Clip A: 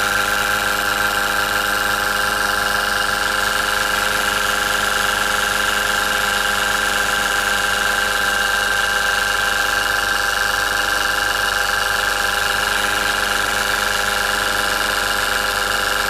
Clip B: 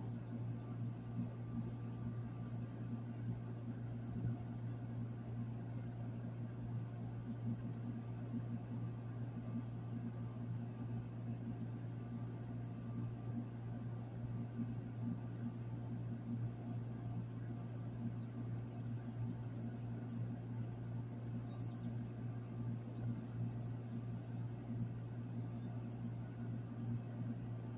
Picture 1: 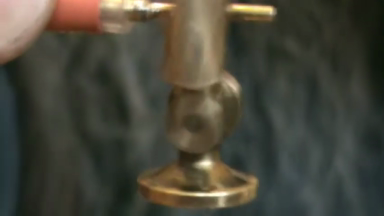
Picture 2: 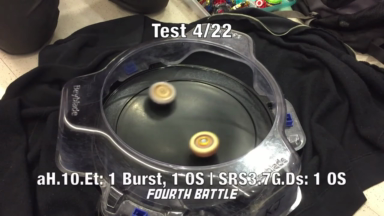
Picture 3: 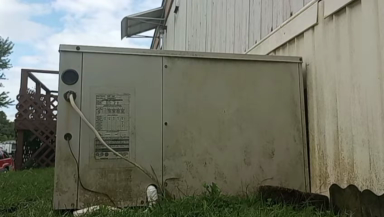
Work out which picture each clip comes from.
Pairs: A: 1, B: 3